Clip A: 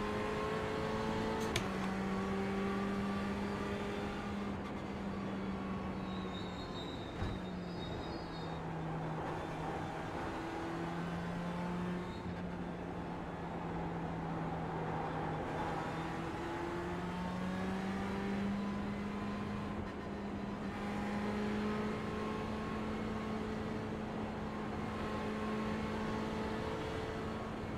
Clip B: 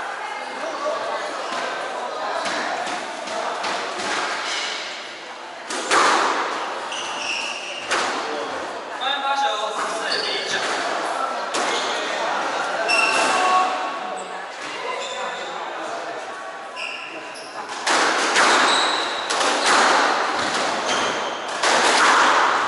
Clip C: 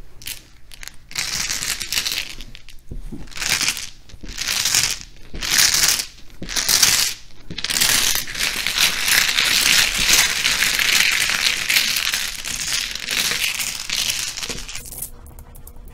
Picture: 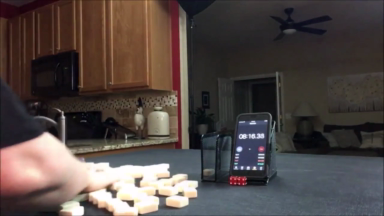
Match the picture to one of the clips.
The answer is C